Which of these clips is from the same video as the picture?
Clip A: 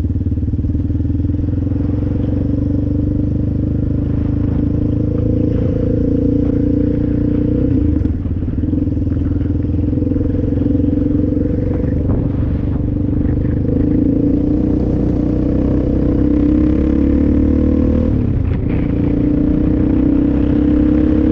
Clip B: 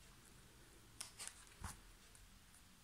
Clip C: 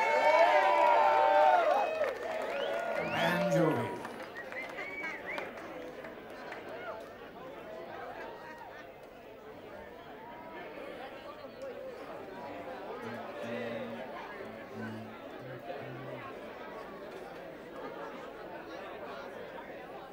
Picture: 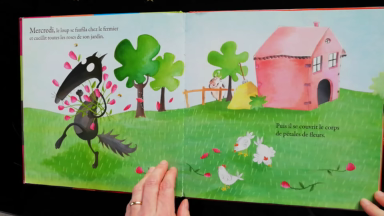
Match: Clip B